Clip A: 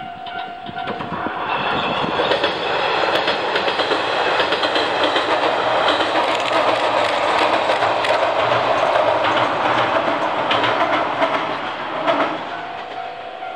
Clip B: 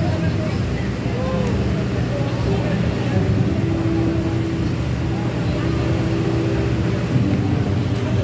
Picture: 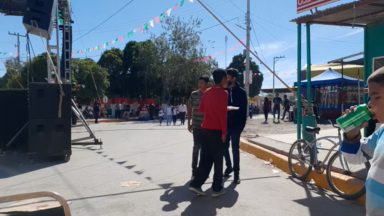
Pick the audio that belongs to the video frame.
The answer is B